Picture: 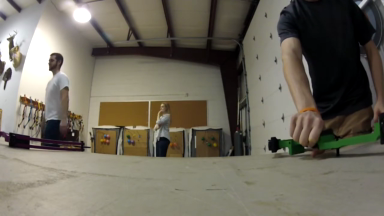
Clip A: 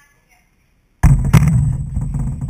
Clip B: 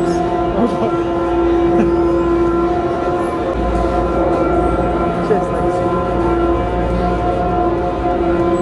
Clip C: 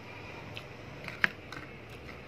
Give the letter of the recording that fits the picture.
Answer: A